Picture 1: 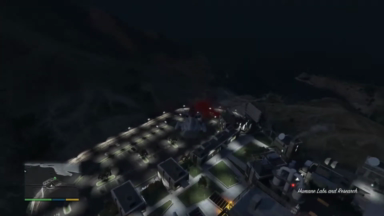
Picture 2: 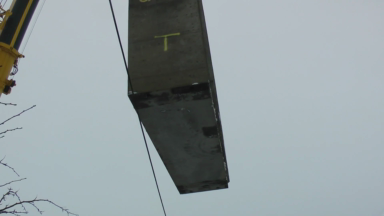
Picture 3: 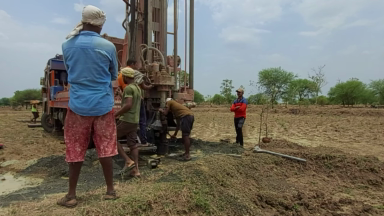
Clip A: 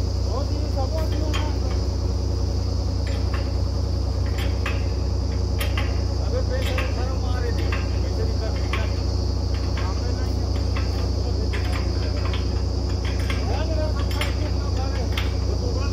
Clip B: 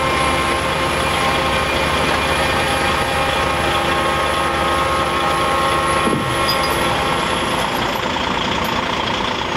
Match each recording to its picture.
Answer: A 3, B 2